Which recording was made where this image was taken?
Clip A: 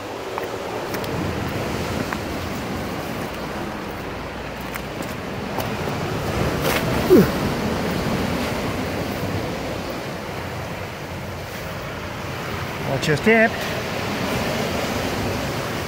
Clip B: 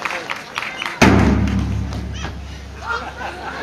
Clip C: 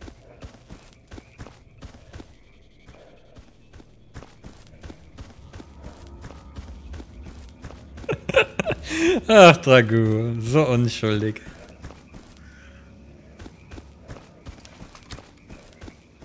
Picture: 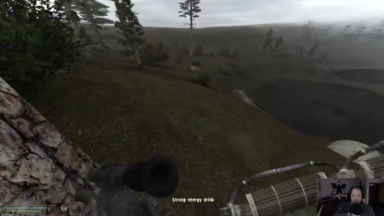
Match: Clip C